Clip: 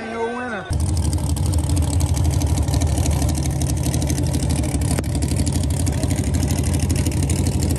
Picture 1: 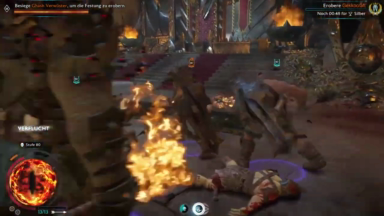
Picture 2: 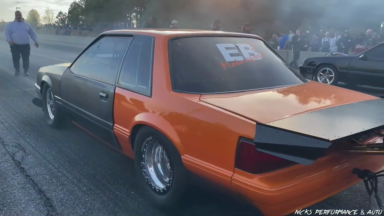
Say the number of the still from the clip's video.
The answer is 2